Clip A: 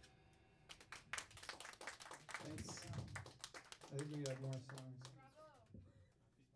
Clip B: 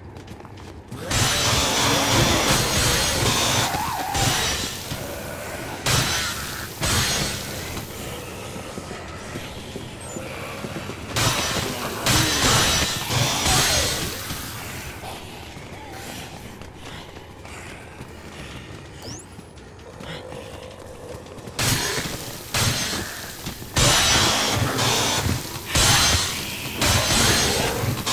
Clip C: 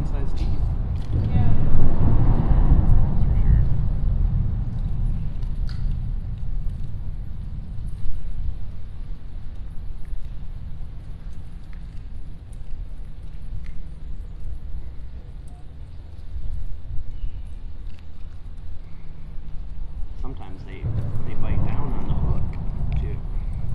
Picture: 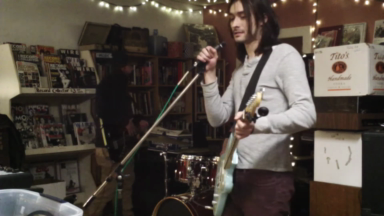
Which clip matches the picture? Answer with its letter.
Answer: A